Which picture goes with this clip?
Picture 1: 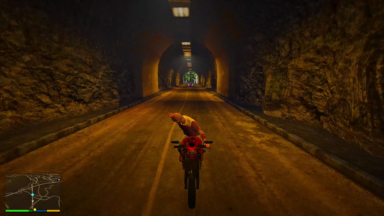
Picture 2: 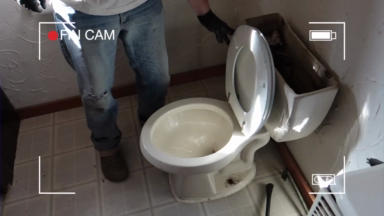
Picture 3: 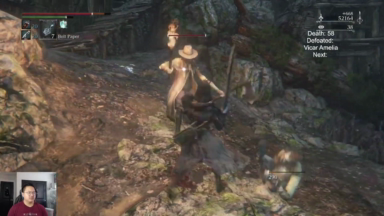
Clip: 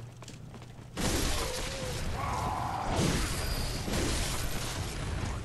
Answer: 3